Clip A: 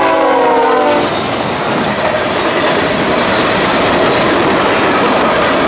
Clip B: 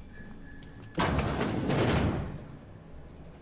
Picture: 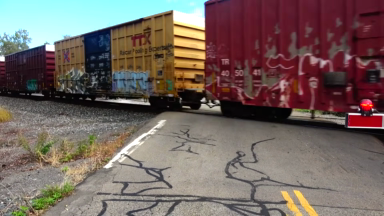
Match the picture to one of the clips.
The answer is A